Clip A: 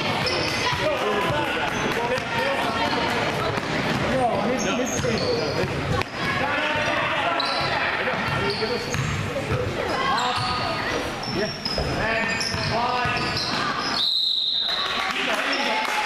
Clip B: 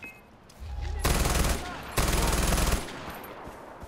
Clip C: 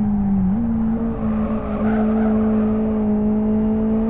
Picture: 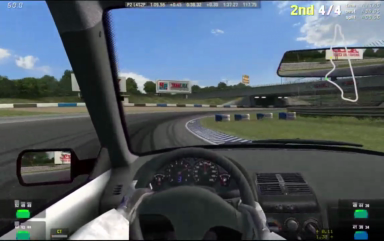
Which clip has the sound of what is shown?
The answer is C